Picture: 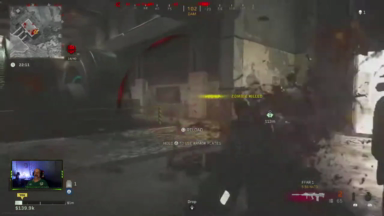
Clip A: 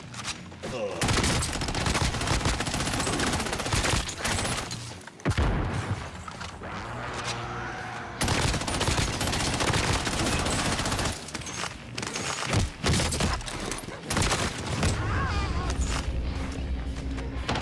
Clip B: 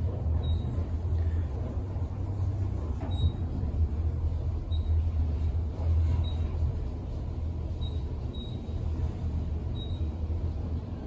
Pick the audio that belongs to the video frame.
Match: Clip A